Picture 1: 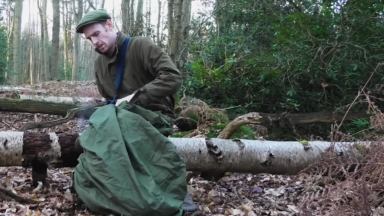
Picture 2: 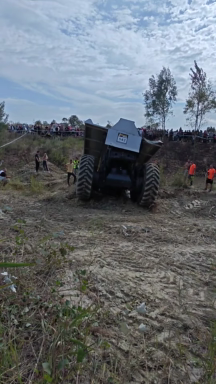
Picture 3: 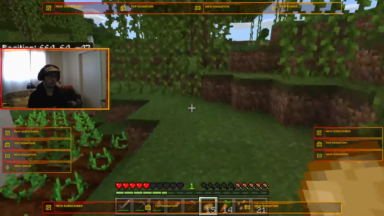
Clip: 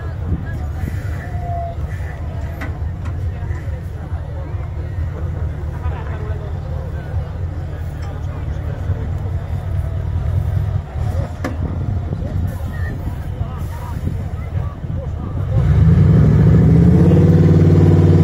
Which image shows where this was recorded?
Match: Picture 2